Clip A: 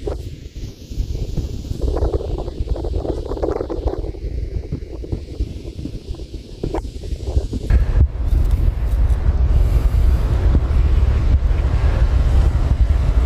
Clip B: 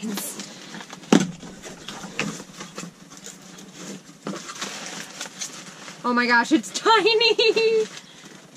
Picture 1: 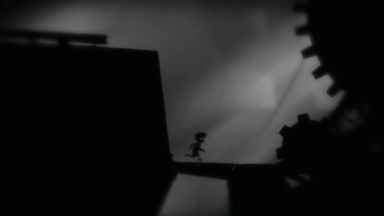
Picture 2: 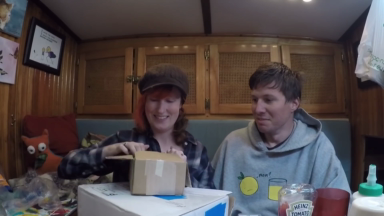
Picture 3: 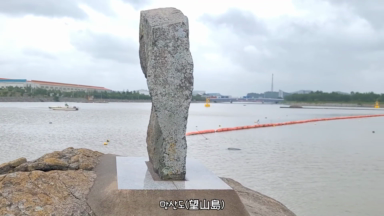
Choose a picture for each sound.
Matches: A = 3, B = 2